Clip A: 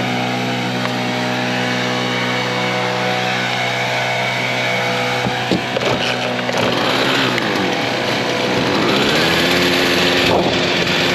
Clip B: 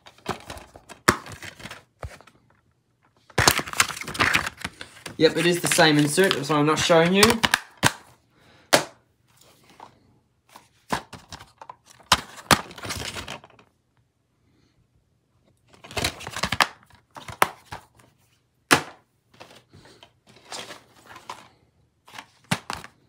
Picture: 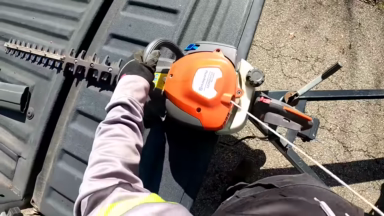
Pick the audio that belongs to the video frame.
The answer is A